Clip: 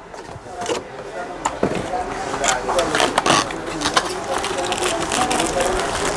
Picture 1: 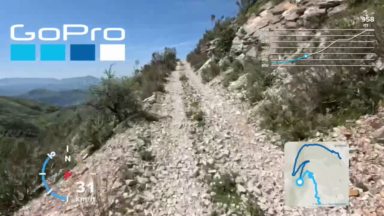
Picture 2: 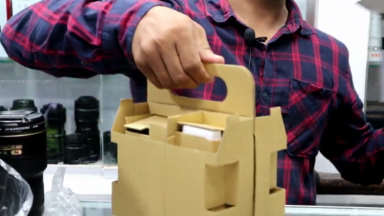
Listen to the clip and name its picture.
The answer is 2